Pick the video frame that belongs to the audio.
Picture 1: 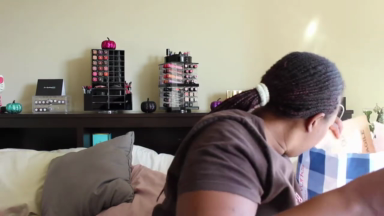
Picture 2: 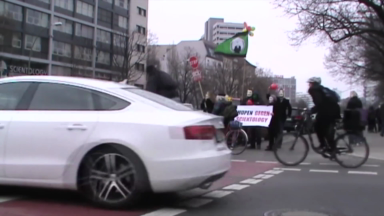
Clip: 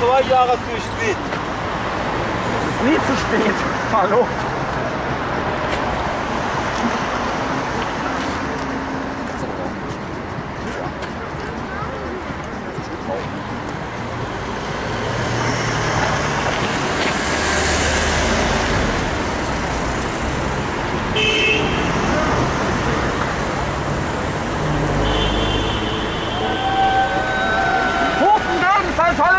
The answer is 2